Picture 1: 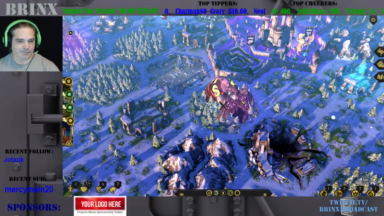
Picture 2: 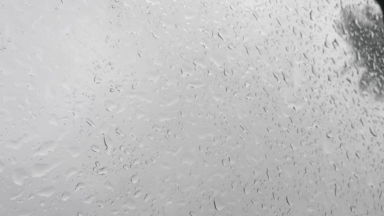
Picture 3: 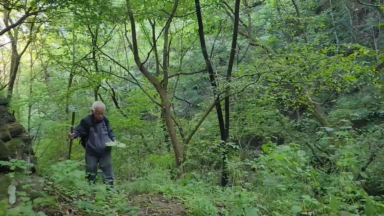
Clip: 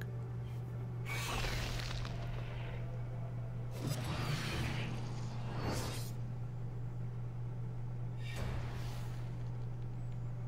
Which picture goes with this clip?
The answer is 1